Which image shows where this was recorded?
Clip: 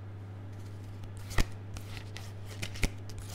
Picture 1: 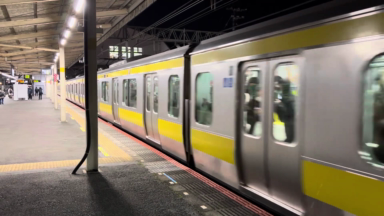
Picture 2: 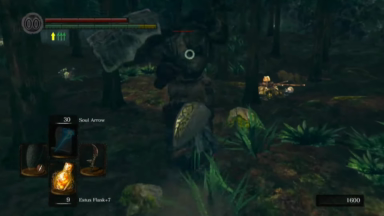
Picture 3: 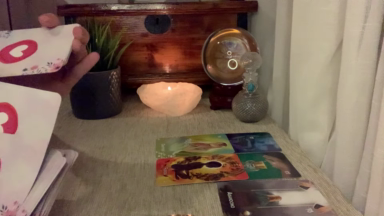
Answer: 3